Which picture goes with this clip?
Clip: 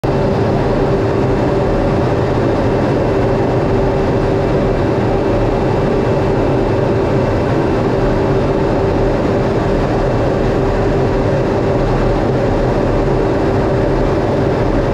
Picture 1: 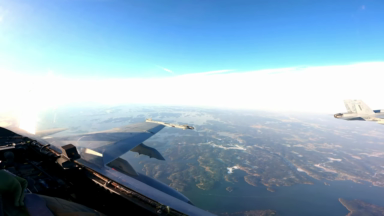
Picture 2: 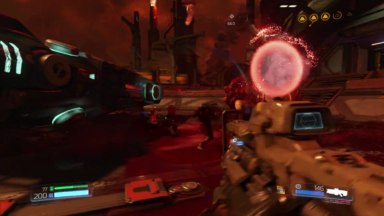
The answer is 1